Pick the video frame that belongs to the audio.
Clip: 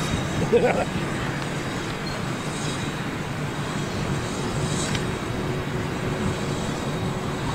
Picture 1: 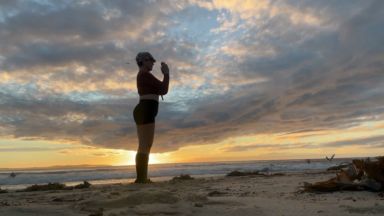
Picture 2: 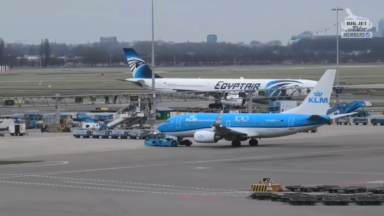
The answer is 2